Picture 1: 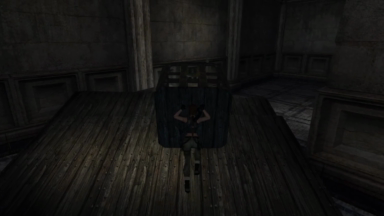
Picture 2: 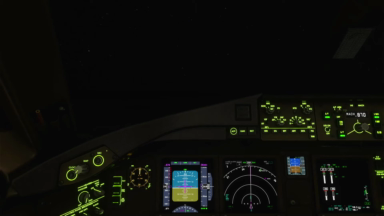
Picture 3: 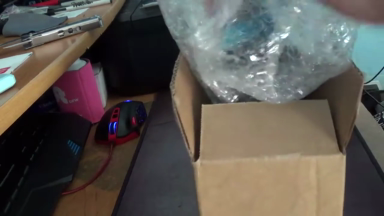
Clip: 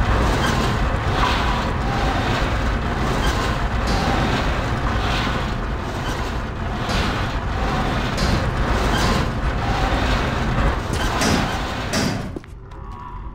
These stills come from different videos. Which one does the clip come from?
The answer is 1